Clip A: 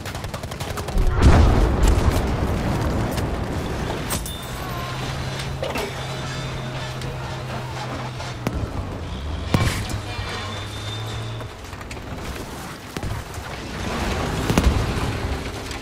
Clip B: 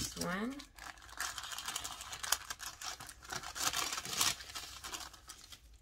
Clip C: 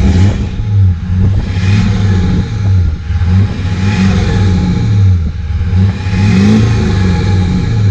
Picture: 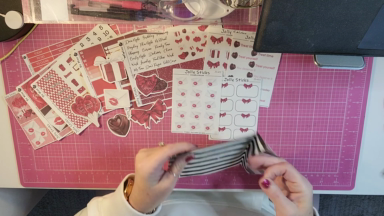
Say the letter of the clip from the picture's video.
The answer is B